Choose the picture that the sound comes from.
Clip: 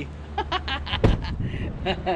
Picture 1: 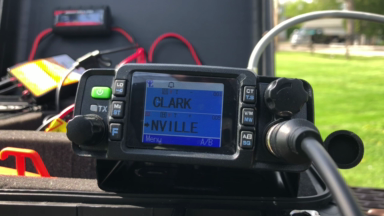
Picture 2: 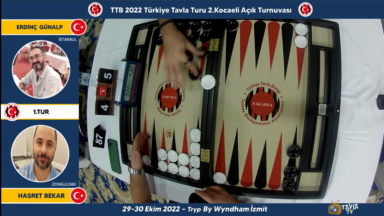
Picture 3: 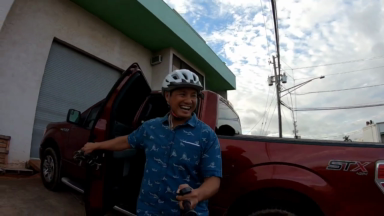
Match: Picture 3